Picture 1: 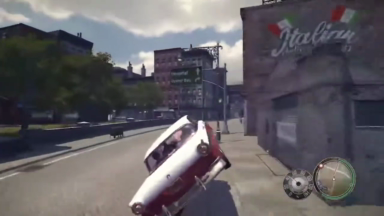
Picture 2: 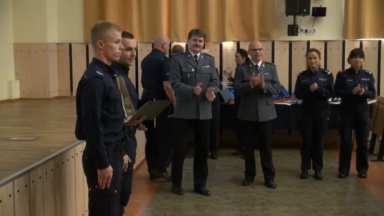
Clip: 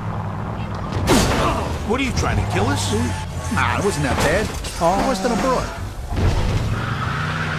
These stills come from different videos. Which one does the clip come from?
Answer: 1